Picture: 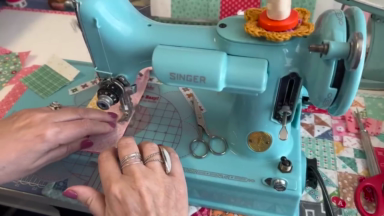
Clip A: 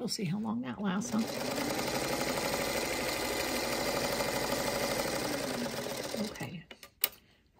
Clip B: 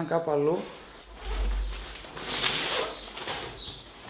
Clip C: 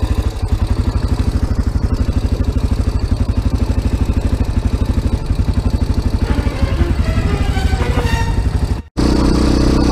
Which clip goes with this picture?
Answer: A